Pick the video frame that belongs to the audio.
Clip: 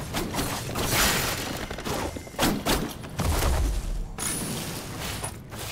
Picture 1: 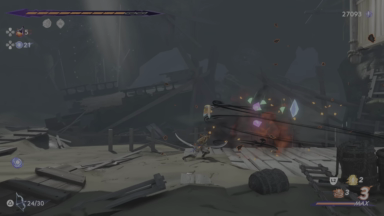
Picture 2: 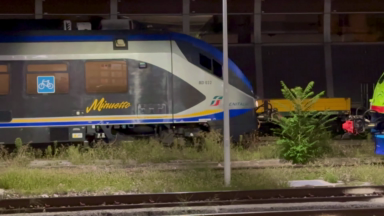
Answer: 1